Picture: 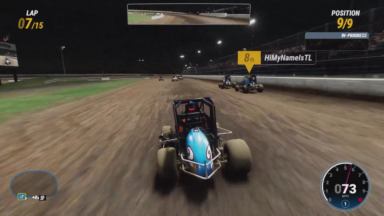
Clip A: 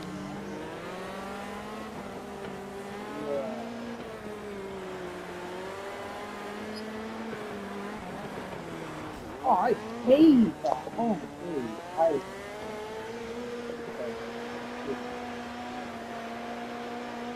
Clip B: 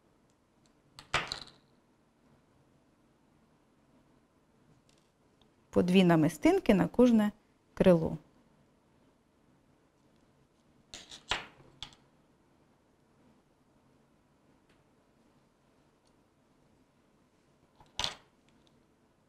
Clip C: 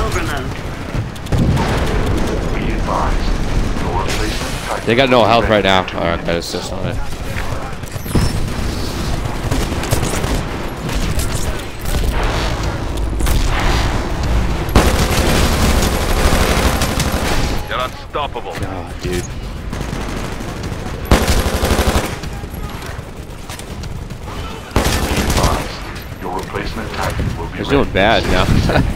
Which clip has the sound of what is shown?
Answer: A